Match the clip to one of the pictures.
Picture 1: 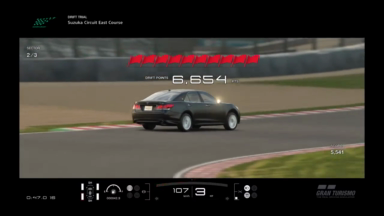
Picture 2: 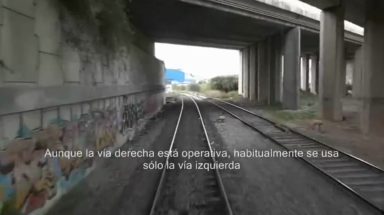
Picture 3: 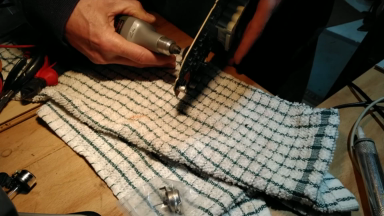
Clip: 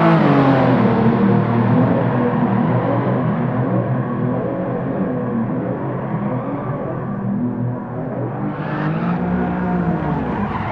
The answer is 1